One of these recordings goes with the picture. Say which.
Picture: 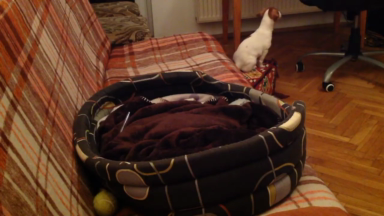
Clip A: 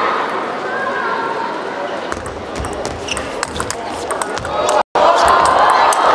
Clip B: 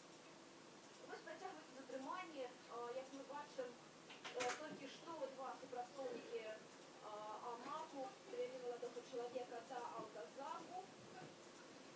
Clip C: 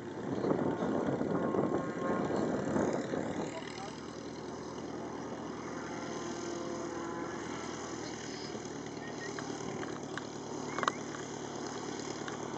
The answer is B